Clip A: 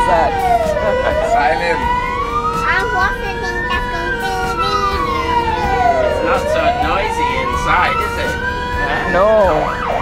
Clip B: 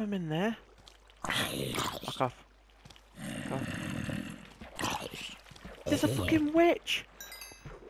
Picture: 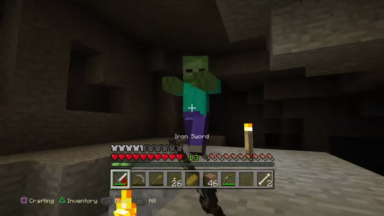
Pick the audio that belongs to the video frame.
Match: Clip B